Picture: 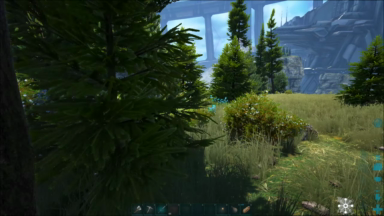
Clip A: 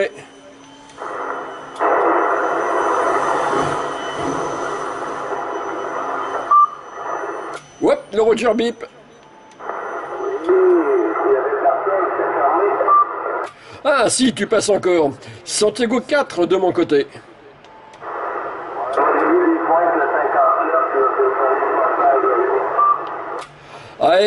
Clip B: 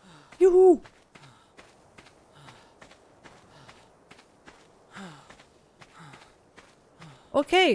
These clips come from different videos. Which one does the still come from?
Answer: B